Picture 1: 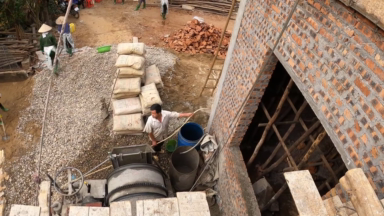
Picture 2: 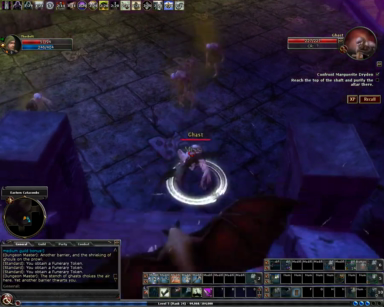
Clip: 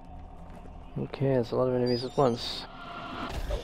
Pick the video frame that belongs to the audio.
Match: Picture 2